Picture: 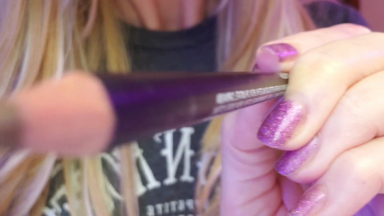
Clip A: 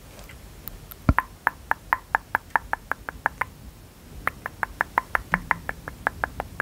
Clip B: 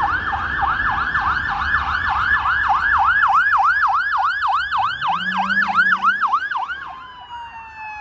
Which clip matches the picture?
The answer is A